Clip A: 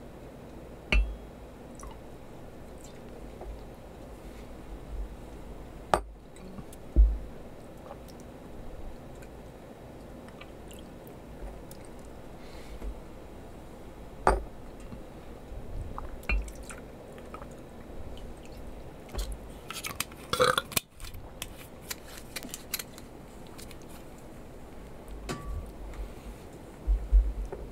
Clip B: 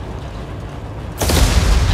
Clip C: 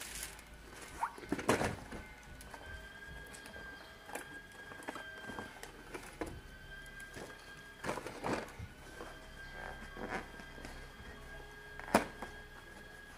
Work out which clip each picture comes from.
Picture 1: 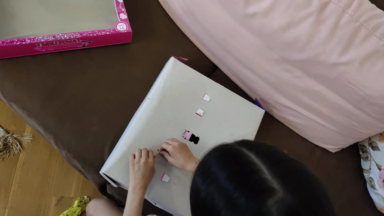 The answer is C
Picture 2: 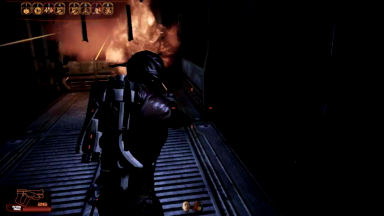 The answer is B